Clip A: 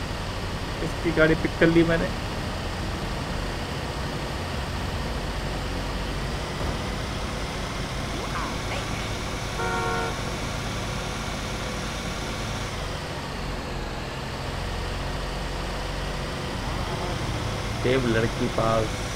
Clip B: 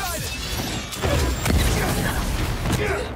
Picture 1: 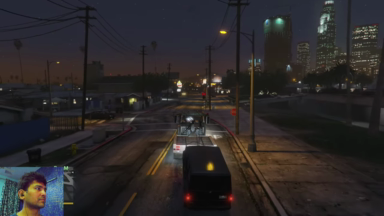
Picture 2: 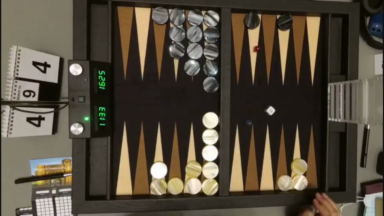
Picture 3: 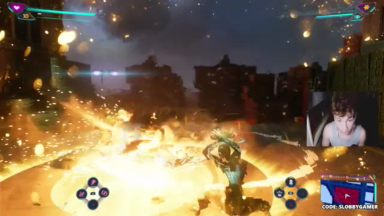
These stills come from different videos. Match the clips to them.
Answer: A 1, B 3